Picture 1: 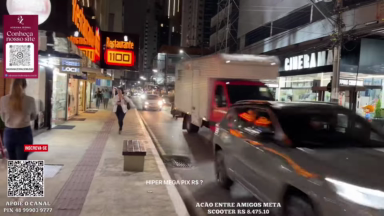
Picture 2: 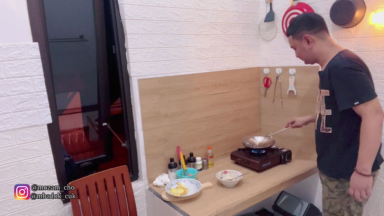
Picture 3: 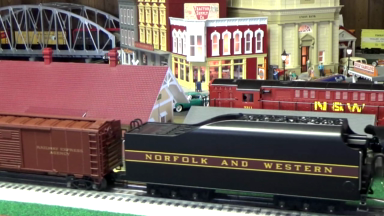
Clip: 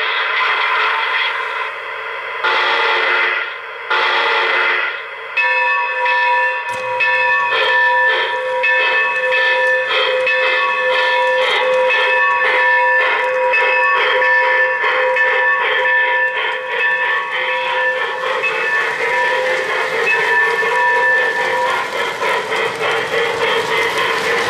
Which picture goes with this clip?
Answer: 3